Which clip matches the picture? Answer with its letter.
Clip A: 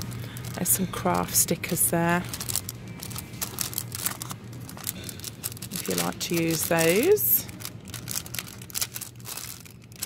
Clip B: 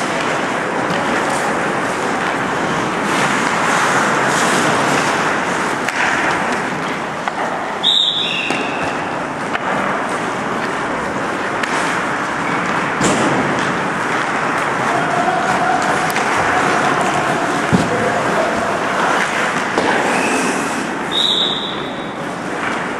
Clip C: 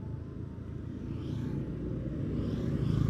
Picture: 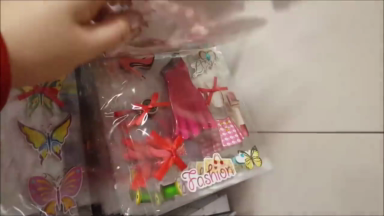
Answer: A